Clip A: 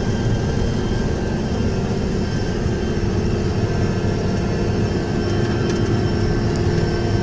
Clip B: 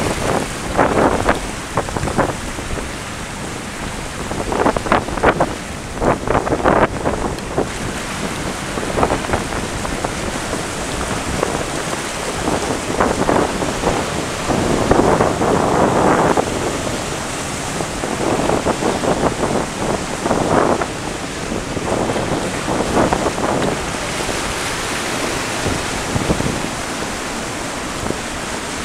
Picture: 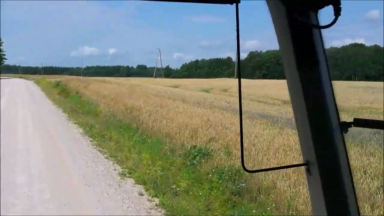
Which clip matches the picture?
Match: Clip A